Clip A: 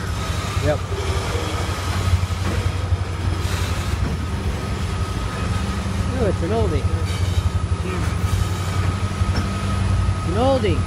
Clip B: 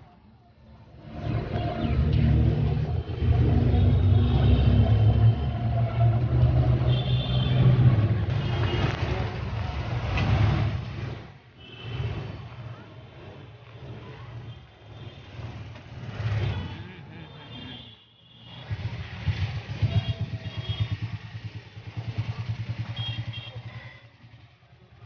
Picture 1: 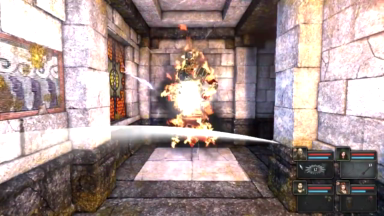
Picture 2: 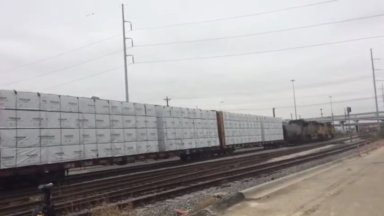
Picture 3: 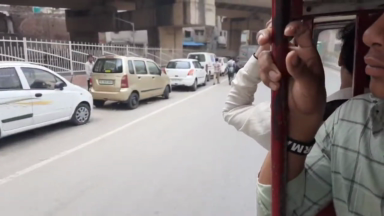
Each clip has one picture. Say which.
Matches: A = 2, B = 3